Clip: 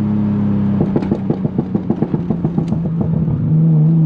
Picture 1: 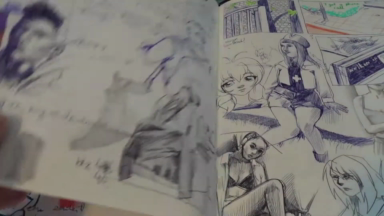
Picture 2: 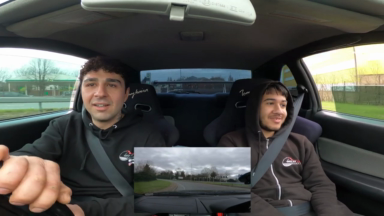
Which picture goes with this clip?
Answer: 2